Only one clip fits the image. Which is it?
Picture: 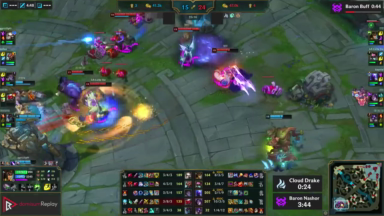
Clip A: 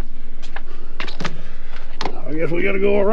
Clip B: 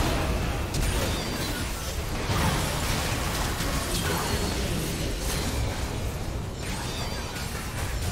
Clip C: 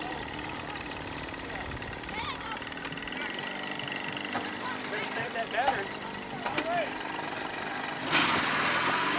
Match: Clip B